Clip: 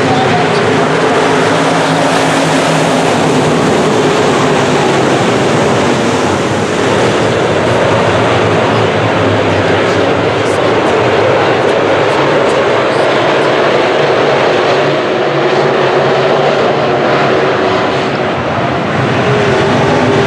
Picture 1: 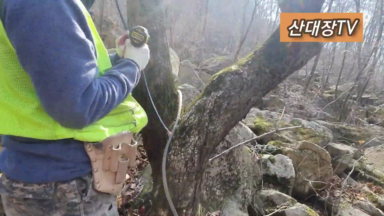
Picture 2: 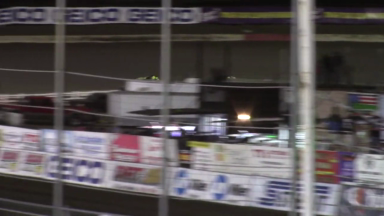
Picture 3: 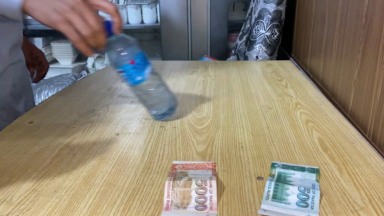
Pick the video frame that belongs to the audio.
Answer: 2